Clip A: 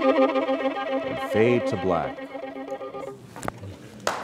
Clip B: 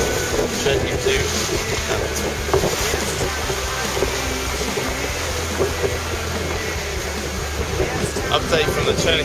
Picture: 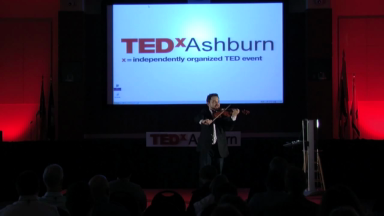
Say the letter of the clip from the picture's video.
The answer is A